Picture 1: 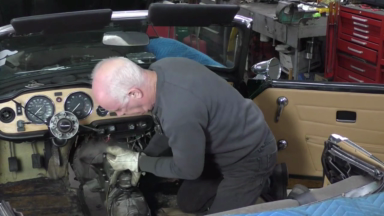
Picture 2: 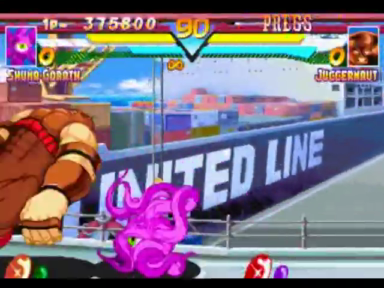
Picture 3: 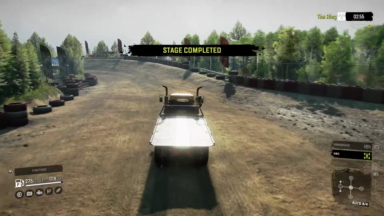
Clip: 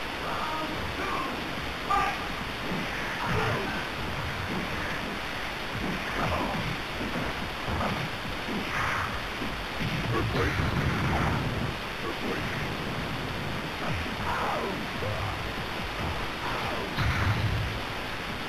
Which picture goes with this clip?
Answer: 2